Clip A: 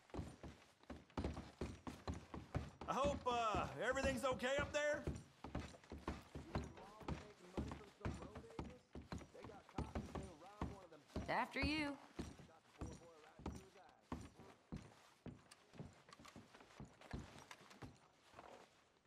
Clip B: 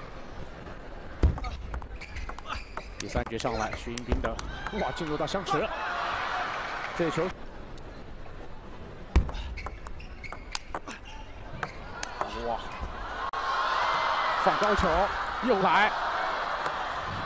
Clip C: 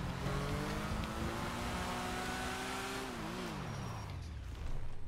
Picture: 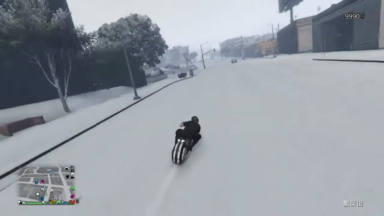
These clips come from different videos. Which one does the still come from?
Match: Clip C